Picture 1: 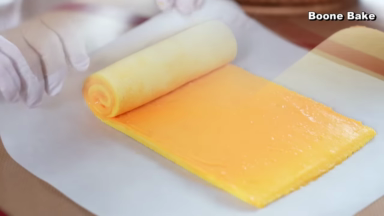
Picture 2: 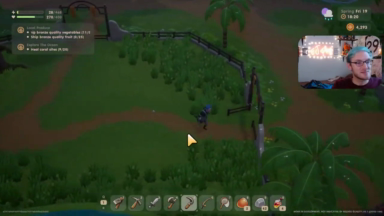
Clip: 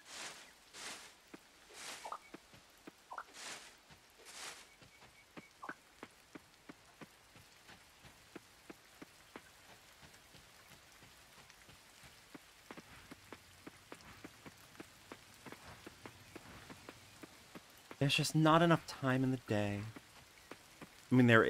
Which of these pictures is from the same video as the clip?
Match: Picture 2